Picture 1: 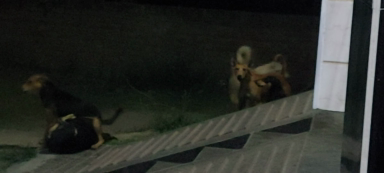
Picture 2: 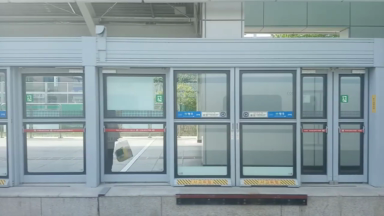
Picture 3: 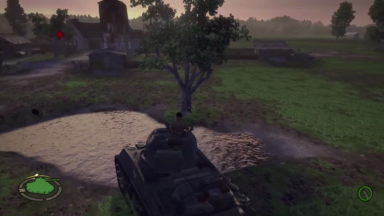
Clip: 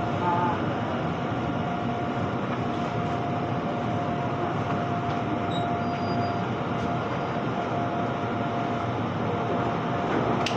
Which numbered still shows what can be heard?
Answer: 2